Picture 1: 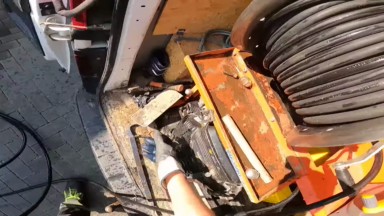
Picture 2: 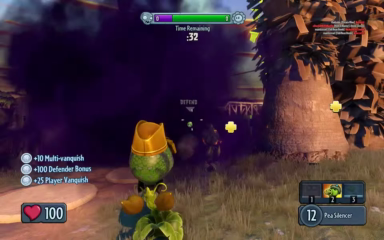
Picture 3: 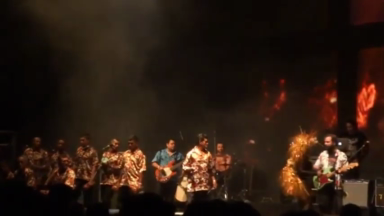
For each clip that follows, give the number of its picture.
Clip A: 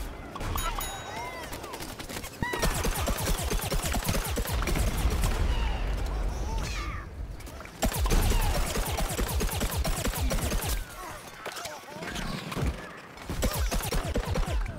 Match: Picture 2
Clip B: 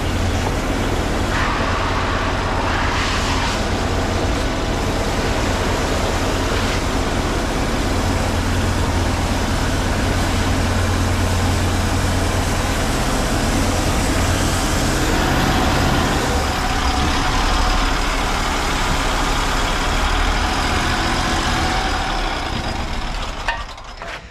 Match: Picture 1